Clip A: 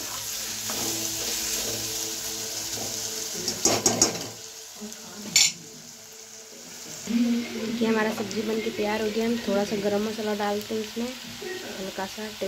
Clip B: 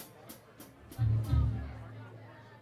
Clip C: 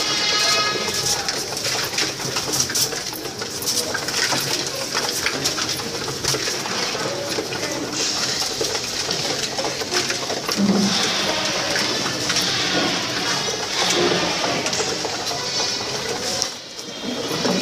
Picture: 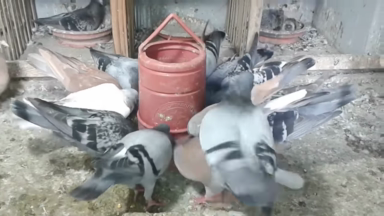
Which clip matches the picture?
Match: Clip C